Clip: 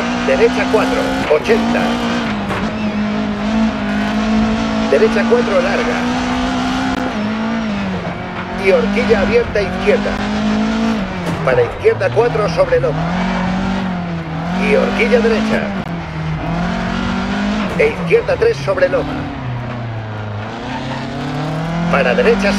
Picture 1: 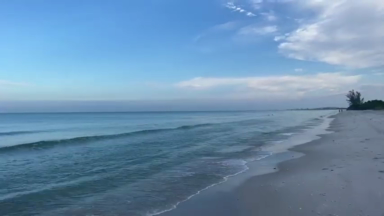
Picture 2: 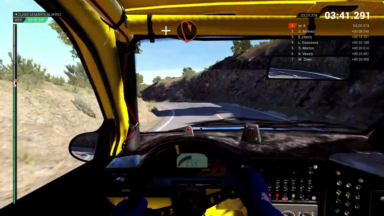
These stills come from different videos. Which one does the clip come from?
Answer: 2